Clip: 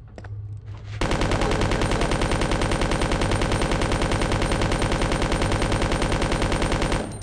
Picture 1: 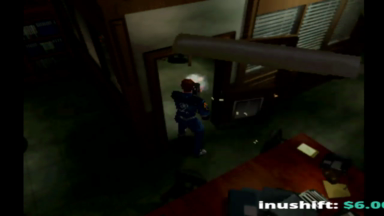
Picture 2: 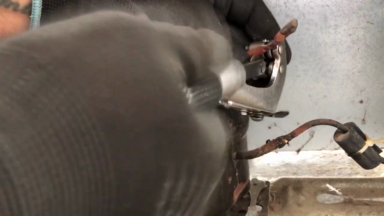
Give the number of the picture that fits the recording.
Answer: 1